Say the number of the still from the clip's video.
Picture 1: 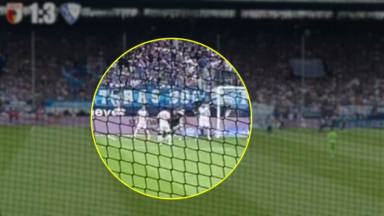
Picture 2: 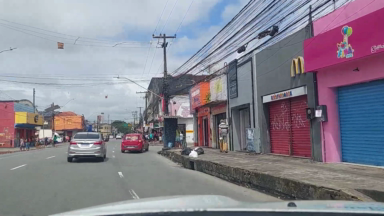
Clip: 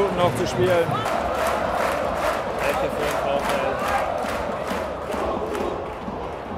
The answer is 1